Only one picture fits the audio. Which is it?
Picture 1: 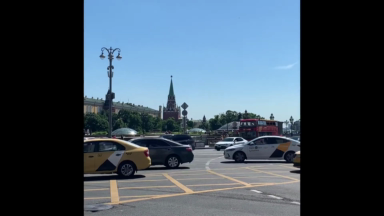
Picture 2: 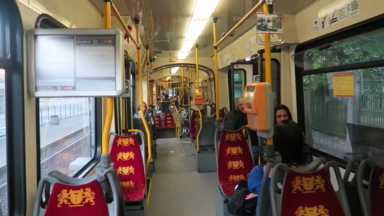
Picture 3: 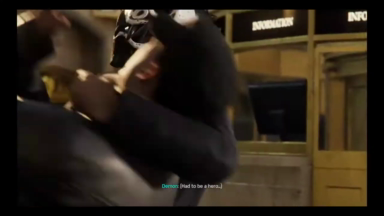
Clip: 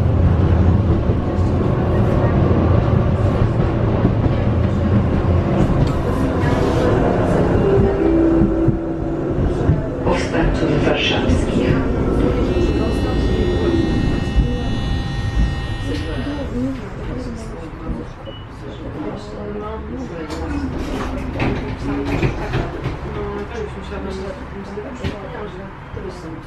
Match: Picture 2